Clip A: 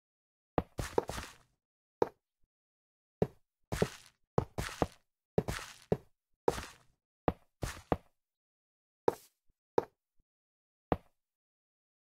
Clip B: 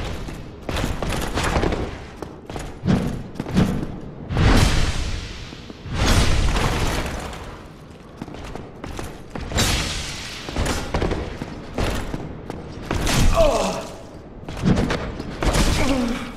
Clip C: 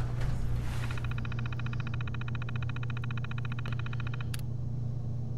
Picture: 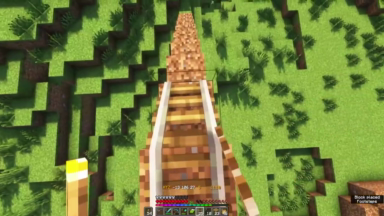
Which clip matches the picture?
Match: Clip A